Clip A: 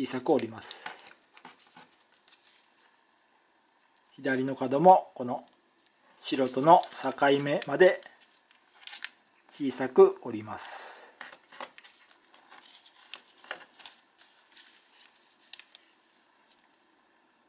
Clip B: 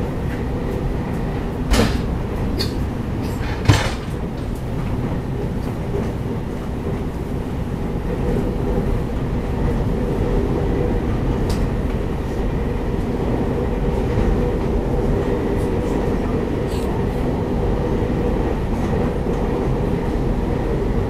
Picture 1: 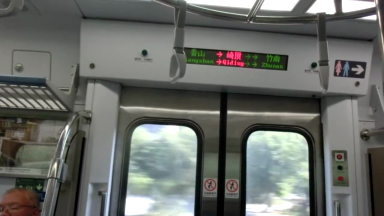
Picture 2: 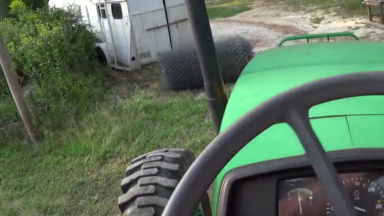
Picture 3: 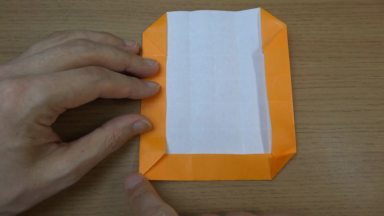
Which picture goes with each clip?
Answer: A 3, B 1